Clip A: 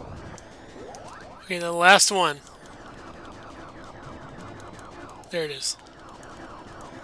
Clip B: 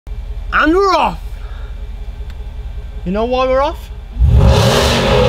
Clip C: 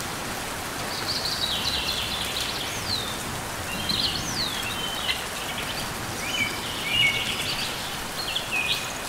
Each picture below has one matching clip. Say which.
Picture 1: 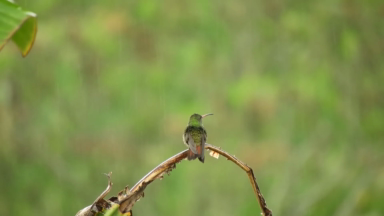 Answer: C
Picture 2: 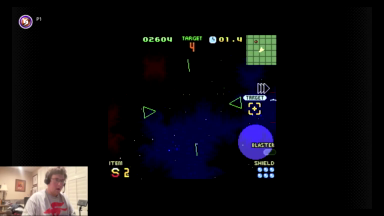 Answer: A